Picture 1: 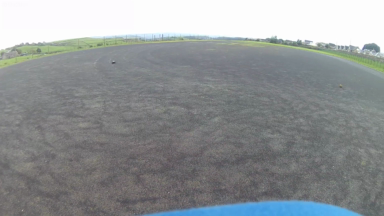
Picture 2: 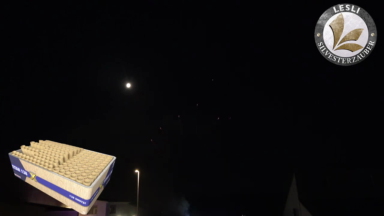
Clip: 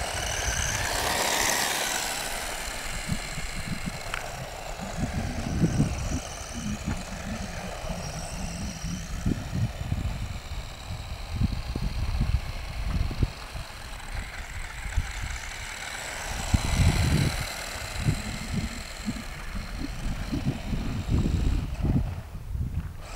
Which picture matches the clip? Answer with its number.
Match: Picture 1